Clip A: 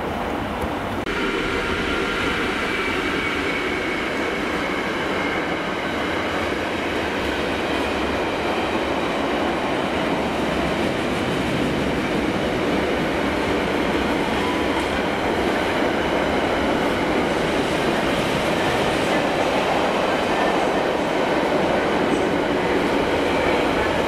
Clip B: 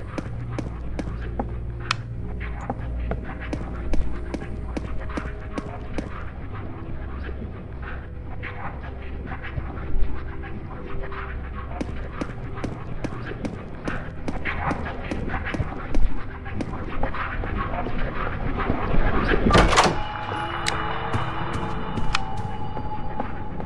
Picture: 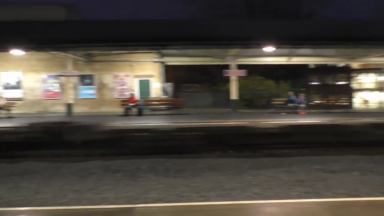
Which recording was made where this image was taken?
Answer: A